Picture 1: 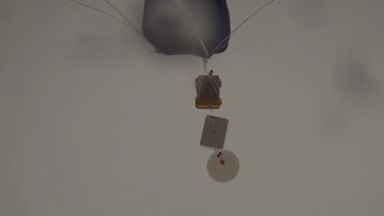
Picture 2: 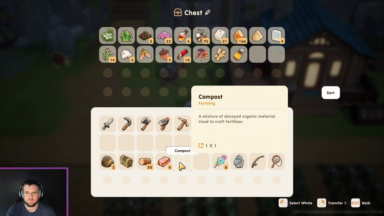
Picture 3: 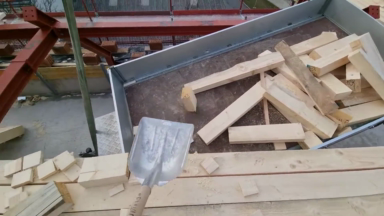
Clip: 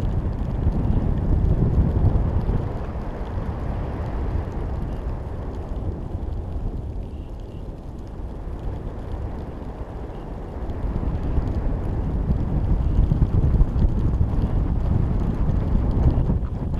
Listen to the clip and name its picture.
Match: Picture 1